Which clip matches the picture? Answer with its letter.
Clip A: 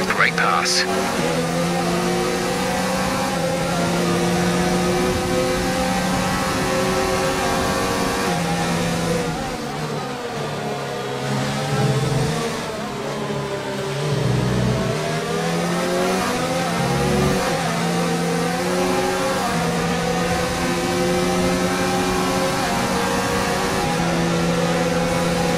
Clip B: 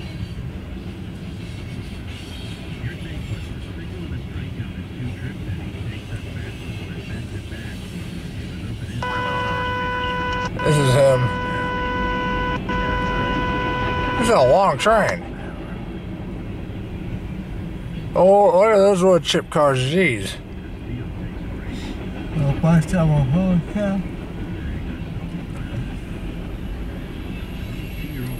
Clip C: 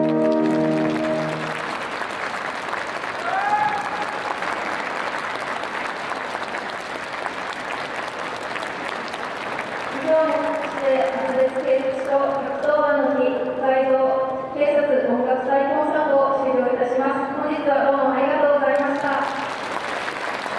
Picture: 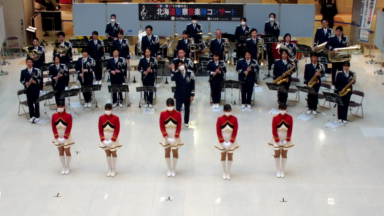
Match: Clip C